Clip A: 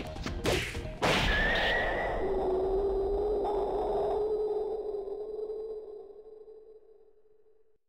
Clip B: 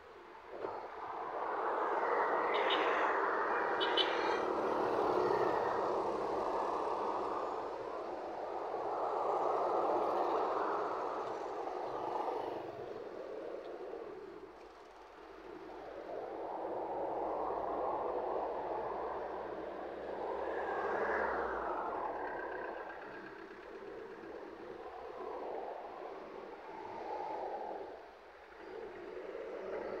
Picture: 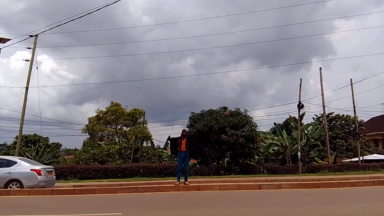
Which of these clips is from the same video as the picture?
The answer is B